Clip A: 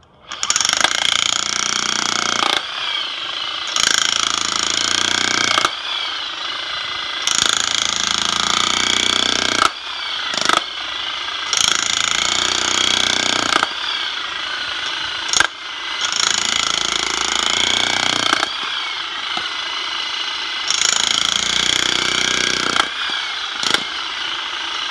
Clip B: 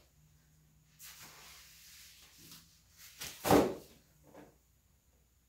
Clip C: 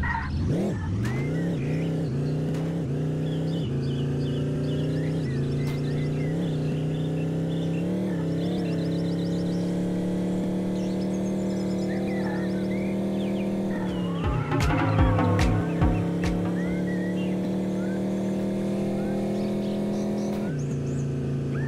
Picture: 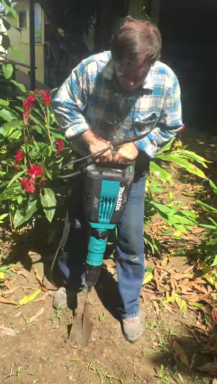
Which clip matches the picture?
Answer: A